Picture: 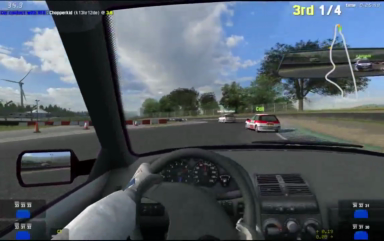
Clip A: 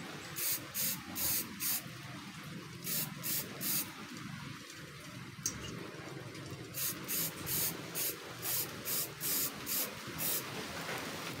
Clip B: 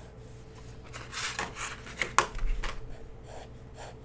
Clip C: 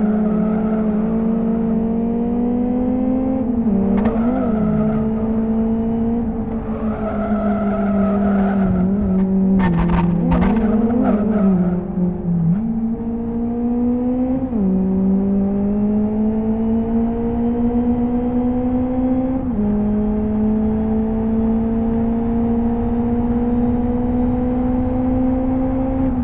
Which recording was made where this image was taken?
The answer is C